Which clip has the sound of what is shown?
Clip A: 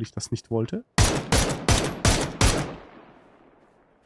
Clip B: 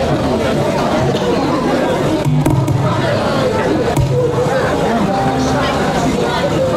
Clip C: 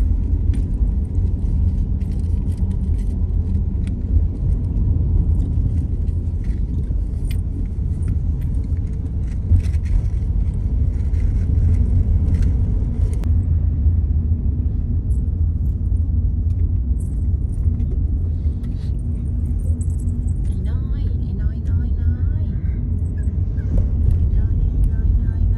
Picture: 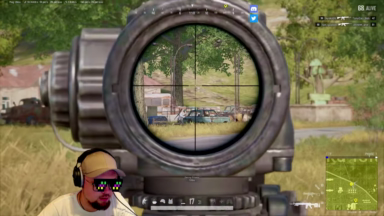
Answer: A